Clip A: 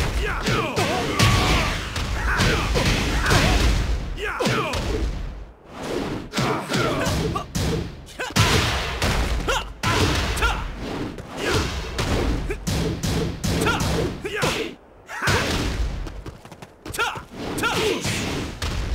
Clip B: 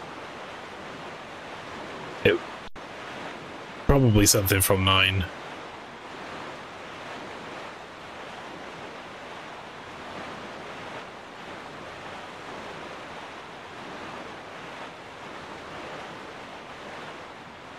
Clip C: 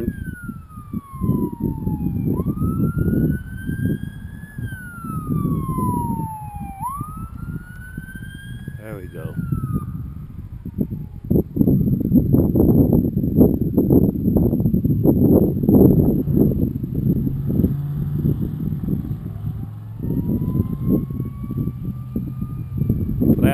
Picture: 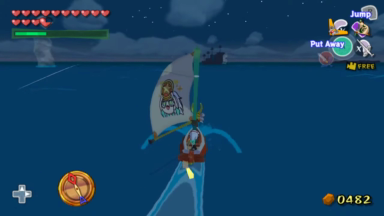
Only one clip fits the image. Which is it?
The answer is B